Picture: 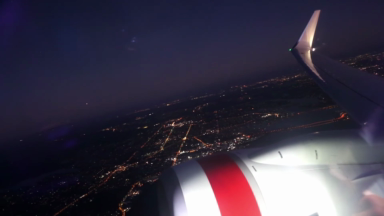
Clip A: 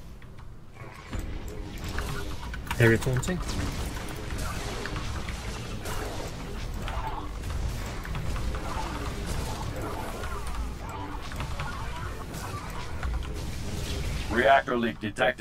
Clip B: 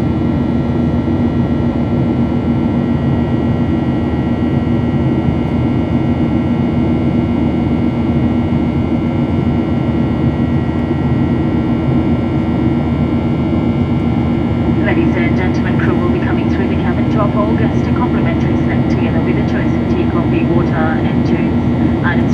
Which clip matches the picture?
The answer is B